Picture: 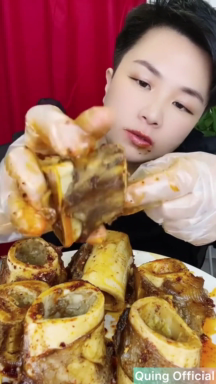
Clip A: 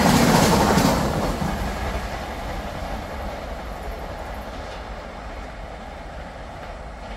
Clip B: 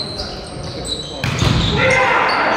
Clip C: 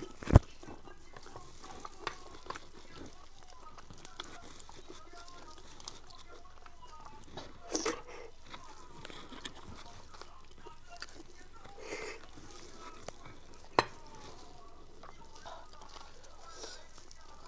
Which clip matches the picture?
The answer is C